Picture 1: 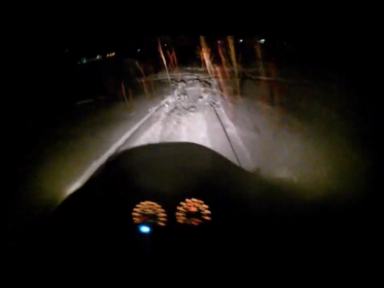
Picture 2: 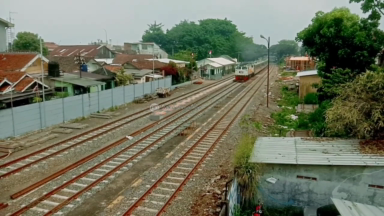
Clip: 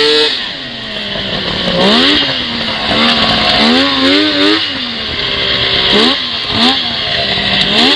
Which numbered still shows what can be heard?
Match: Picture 1